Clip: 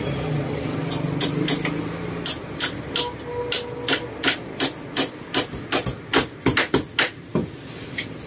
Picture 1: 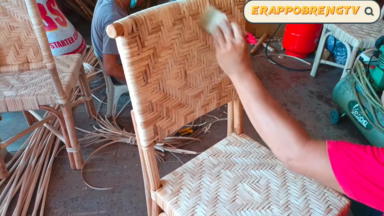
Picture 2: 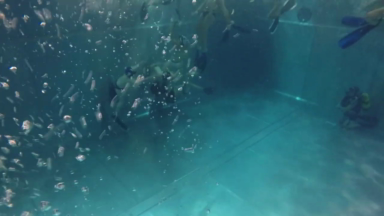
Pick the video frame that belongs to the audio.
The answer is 1